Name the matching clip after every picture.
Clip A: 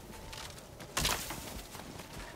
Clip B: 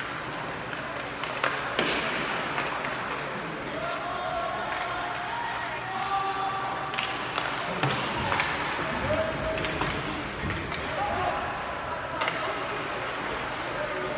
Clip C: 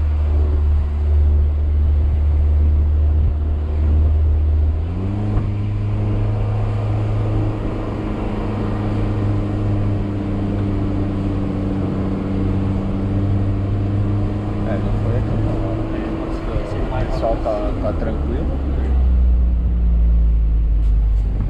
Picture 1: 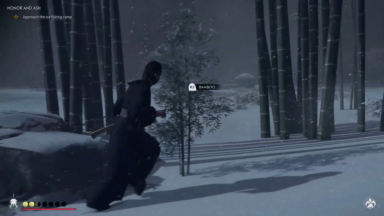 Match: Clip A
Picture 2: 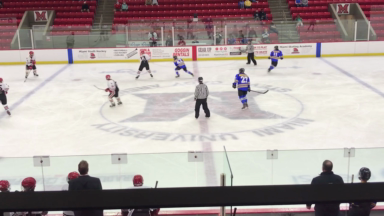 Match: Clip B